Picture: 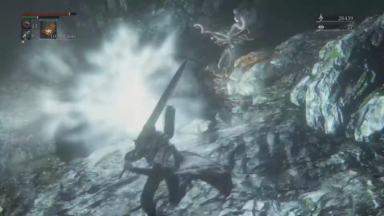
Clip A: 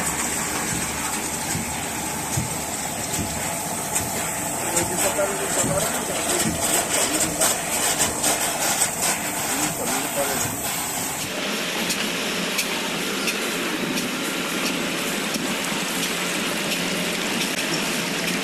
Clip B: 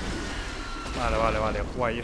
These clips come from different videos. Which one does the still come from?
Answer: B